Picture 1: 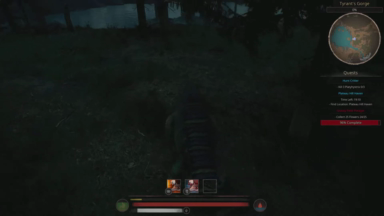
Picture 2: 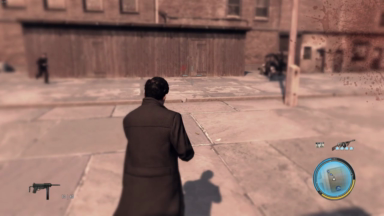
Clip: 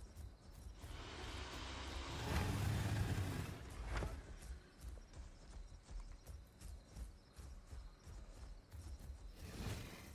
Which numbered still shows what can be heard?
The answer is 1